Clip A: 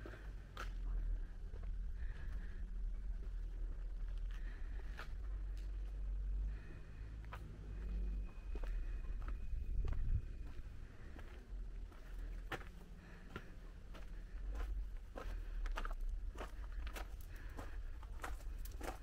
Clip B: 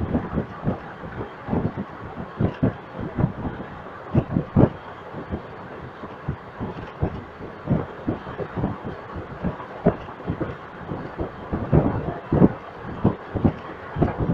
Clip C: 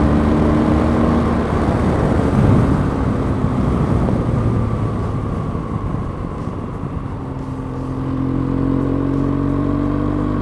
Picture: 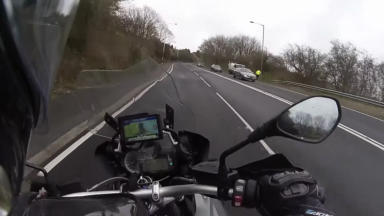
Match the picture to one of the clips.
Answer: C